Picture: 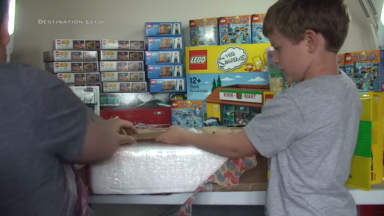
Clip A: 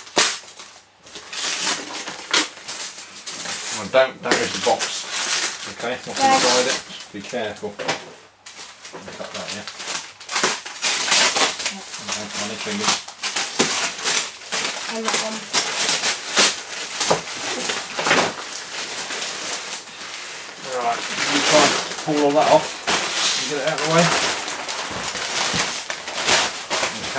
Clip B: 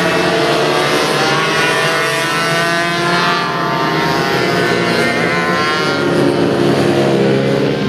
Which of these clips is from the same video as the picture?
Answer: A